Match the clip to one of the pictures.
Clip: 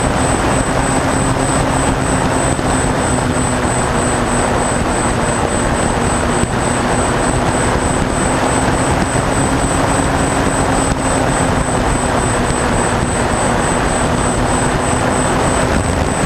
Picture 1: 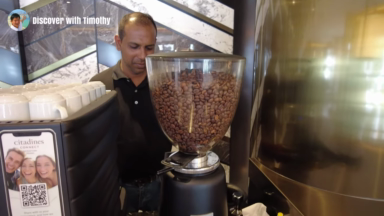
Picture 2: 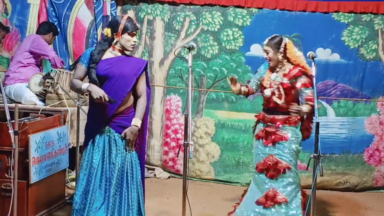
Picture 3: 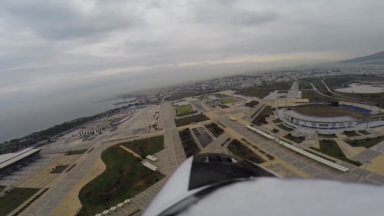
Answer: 3